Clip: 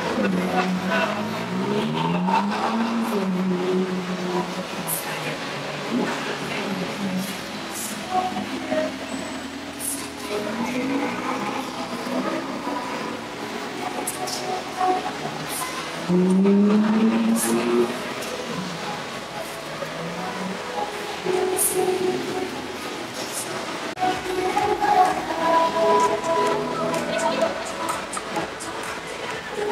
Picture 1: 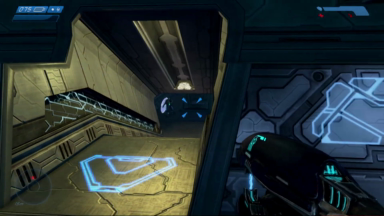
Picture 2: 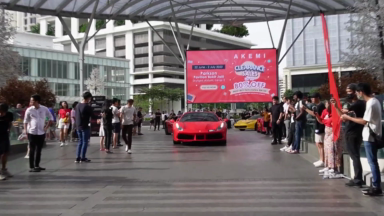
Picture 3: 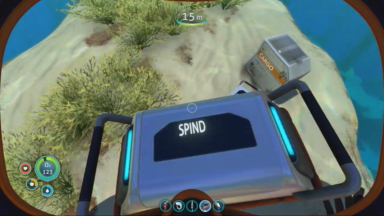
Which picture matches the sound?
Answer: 2